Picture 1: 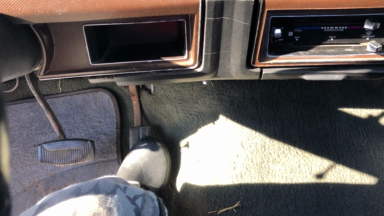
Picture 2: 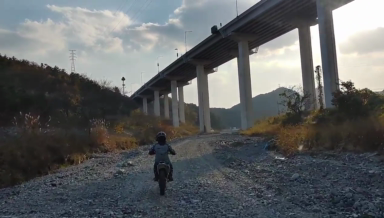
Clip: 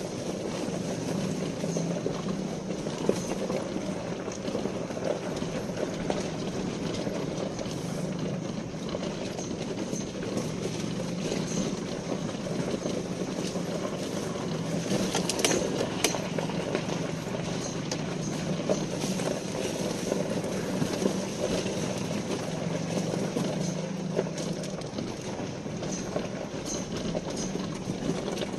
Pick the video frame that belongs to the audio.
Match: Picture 2